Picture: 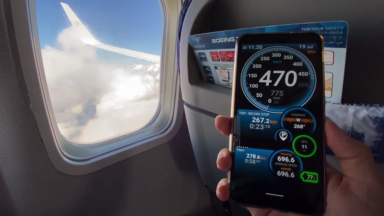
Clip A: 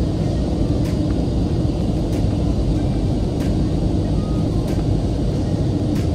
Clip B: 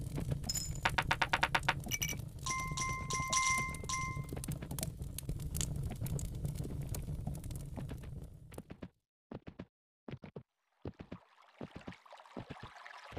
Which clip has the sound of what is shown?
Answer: A